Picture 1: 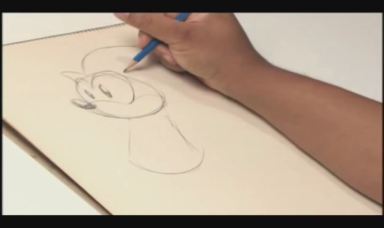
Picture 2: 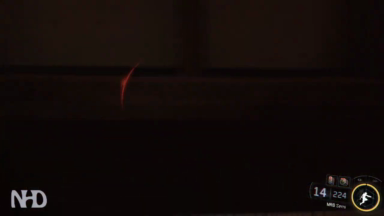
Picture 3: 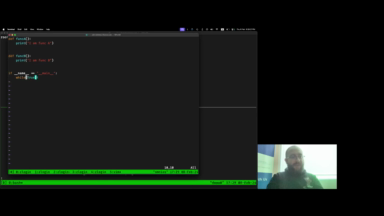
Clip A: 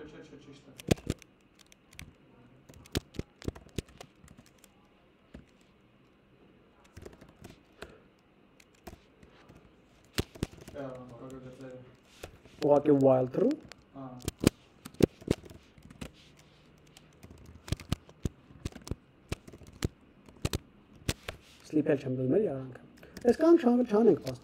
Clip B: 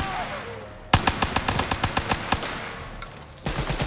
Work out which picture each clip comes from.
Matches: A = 3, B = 2